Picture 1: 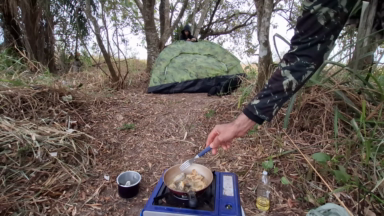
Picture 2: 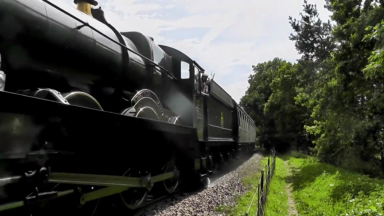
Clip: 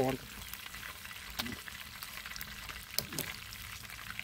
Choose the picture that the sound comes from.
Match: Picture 1